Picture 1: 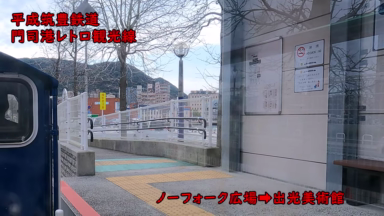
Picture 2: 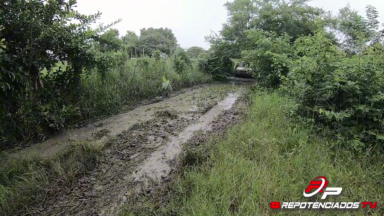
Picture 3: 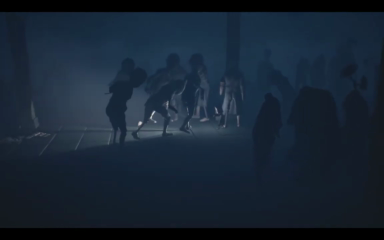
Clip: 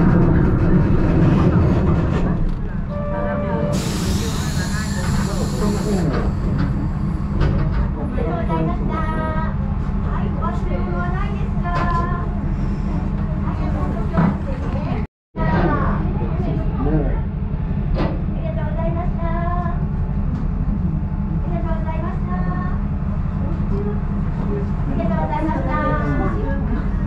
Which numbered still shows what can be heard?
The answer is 1